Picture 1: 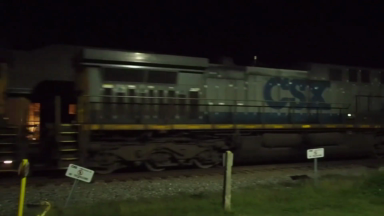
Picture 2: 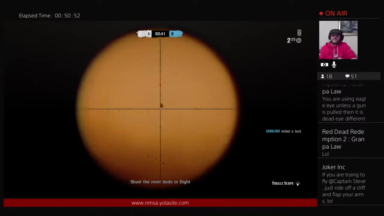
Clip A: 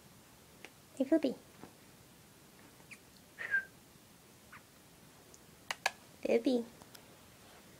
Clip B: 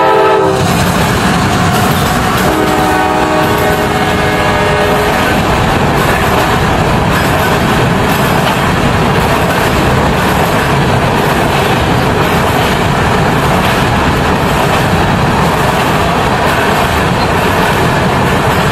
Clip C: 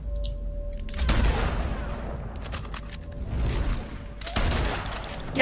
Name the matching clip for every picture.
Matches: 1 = B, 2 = C